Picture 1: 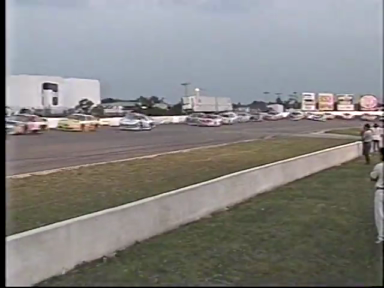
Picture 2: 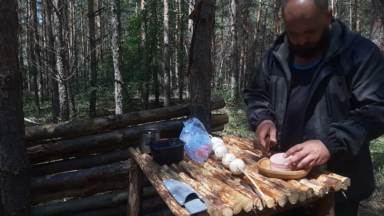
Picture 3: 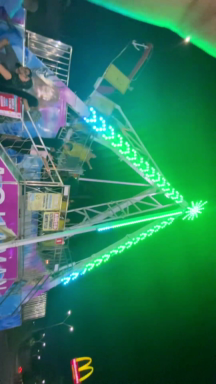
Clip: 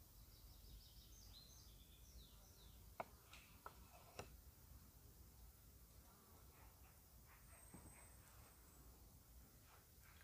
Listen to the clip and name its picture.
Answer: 2